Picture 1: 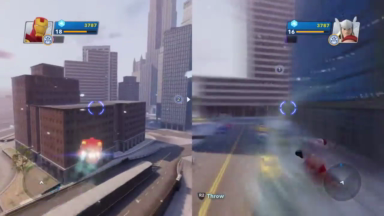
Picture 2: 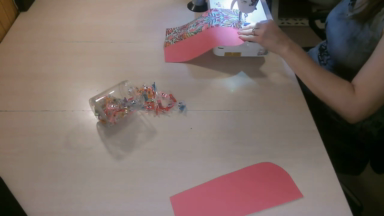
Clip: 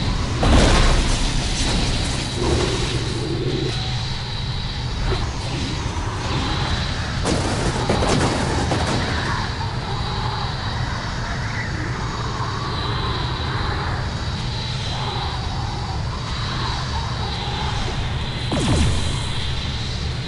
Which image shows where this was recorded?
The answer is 1